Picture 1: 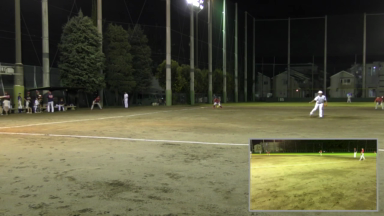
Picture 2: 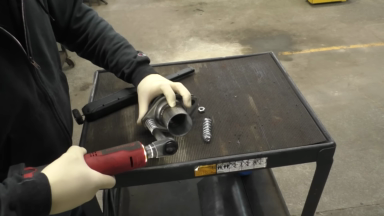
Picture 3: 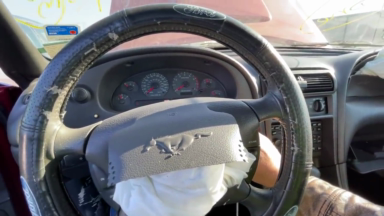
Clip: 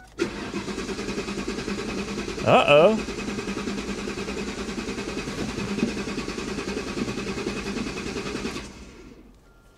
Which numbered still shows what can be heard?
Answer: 3